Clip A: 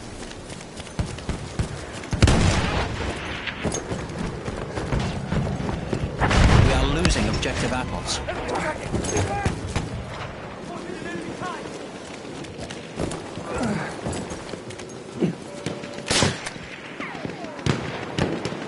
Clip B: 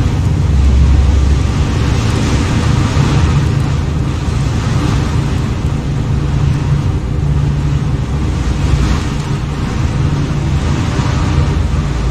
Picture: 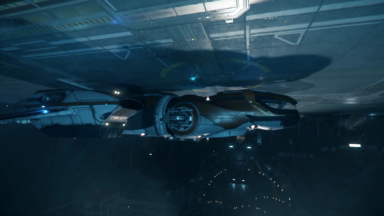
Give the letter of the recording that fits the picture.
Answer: B